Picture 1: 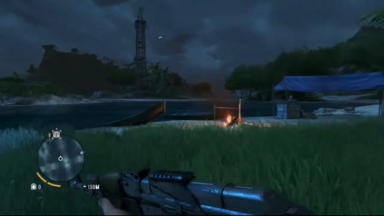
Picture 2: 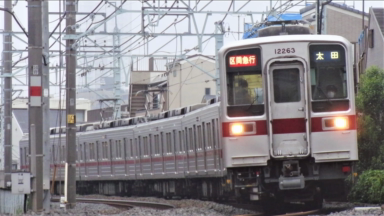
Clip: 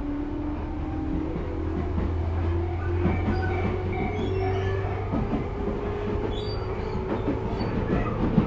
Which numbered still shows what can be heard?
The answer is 2